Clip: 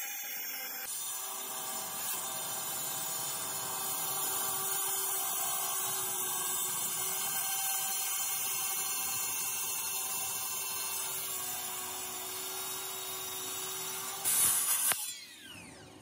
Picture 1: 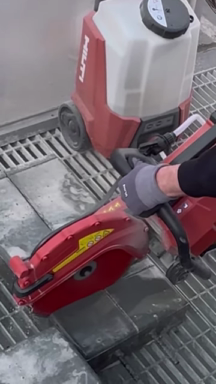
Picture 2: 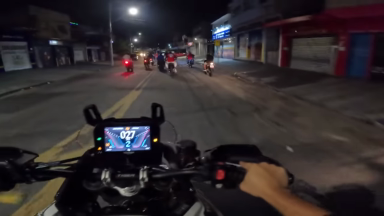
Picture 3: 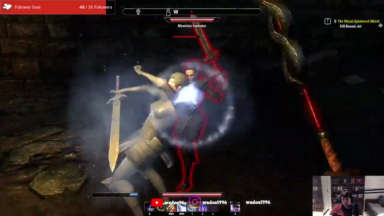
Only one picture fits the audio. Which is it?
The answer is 1